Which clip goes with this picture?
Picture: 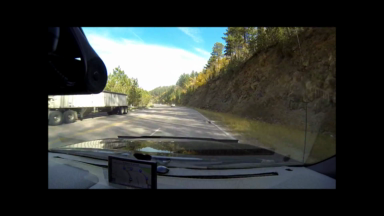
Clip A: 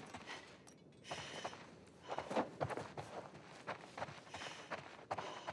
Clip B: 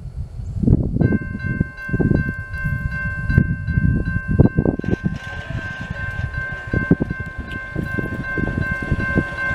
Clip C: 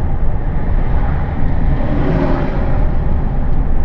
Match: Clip C